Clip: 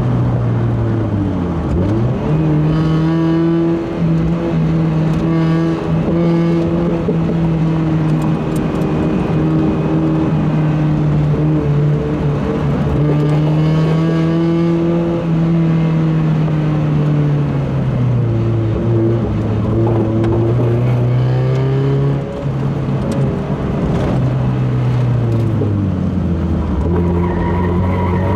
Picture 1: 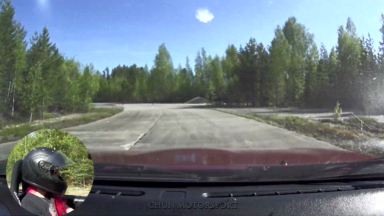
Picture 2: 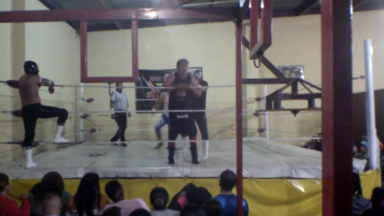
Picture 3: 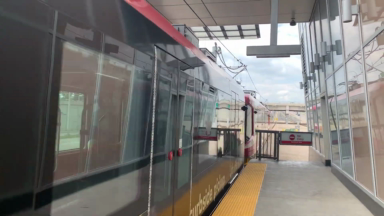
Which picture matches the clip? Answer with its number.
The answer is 1